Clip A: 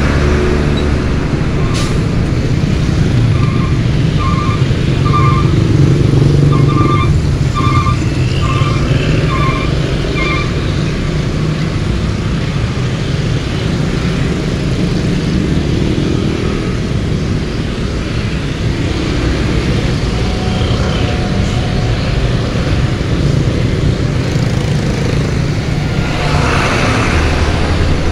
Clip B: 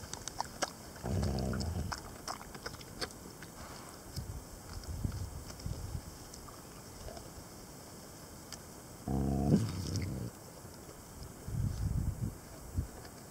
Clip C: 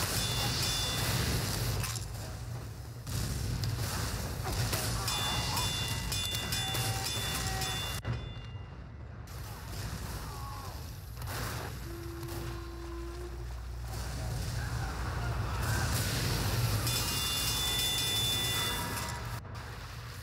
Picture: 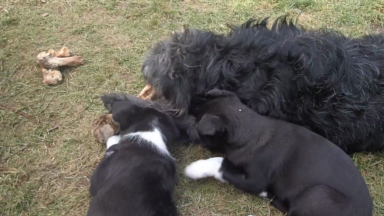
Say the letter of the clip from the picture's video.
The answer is B